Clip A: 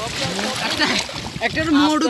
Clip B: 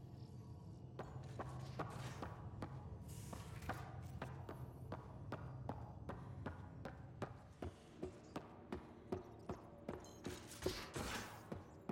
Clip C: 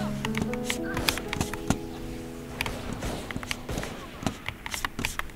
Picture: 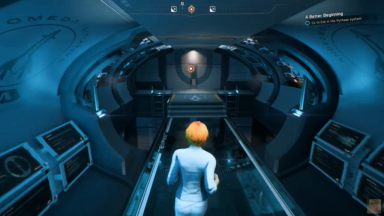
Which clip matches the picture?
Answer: B